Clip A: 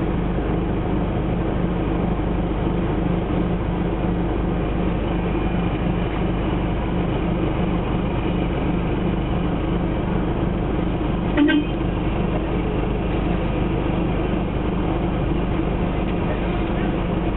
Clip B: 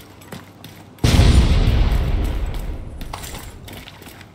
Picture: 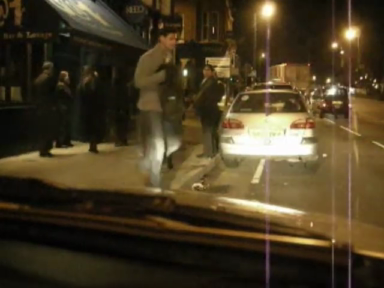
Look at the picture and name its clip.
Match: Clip A